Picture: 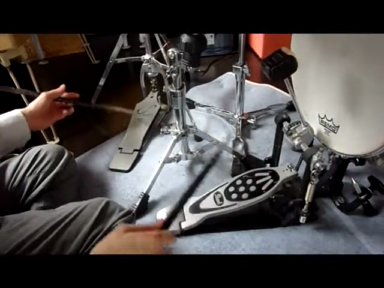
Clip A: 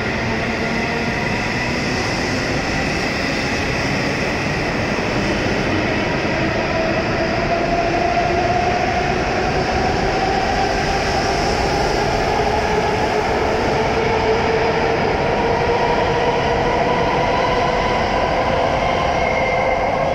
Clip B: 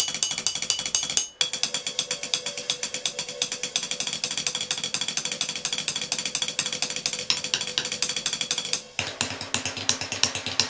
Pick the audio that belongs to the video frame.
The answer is B